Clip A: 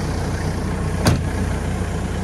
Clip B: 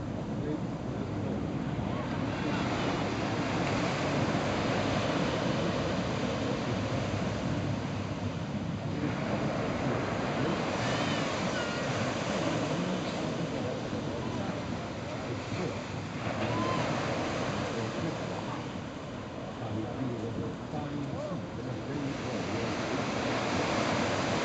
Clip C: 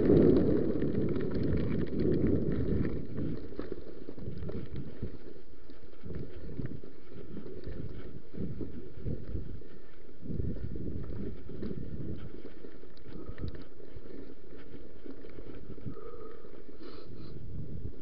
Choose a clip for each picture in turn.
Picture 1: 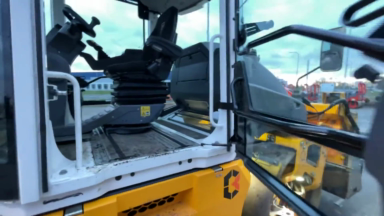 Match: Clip A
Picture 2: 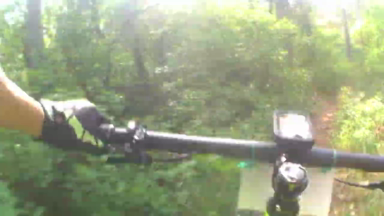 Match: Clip C